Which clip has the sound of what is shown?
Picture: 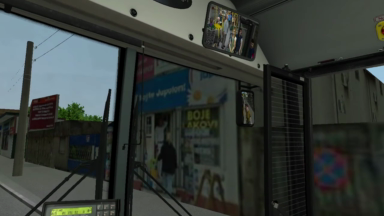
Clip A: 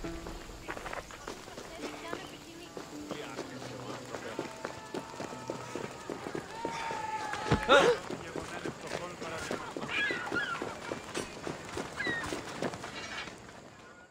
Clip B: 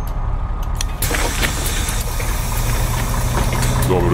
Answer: B